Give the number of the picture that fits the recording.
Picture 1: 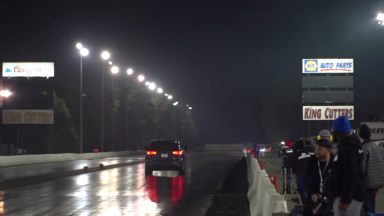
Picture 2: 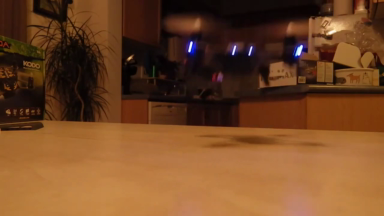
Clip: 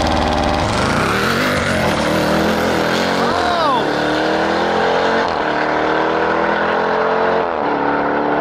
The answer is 1